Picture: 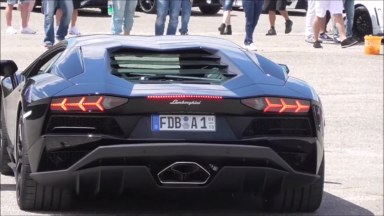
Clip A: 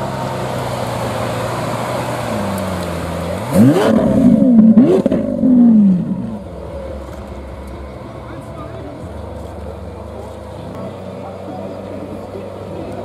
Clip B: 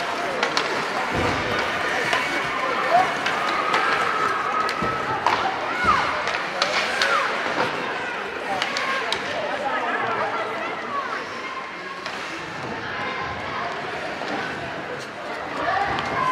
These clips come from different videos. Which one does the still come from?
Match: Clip A